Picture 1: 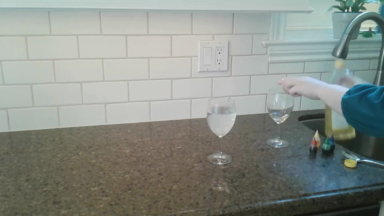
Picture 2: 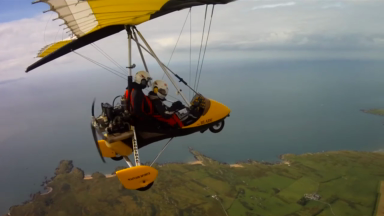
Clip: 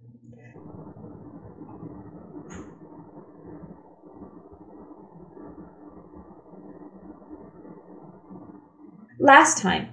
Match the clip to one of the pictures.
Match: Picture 1